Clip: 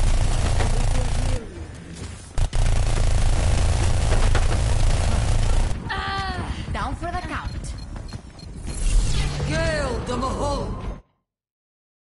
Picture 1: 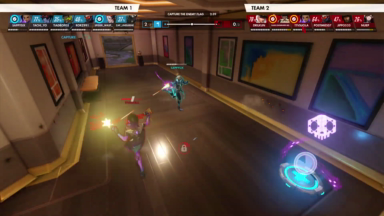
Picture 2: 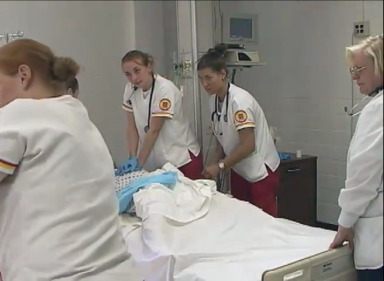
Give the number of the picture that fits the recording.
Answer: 1